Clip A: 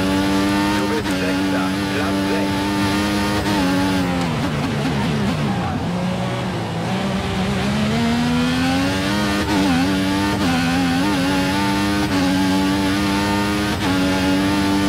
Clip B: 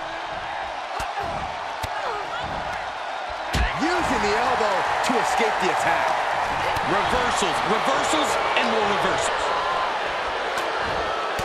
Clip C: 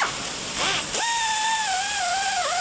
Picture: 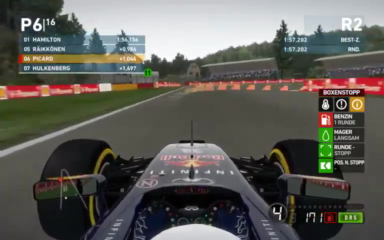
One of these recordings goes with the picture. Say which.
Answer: A